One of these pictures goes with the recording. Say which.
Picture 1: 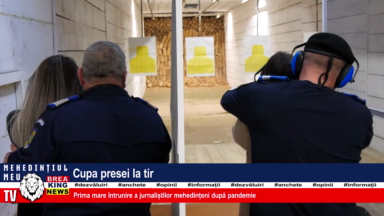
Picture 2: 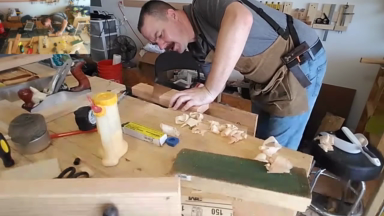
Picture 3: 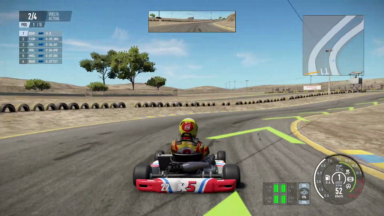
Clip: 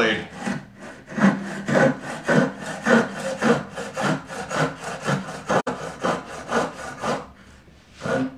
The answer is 2